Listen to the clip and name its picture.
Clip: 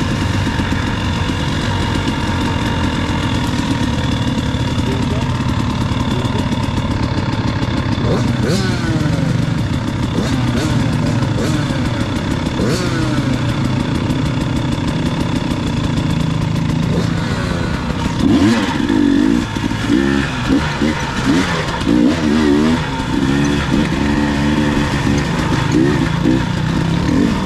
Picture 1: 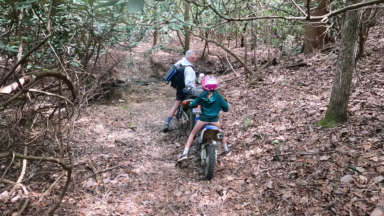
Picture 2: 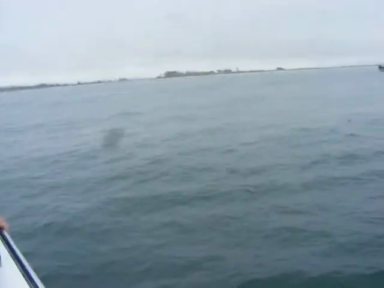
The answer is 1